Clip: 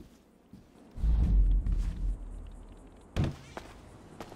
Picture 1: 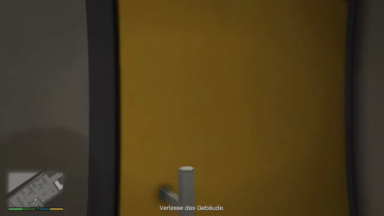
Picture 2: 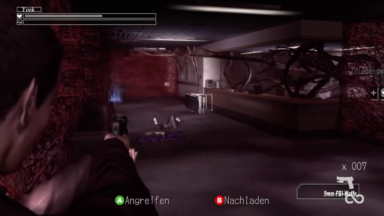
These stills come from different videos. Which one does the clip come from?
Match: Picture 1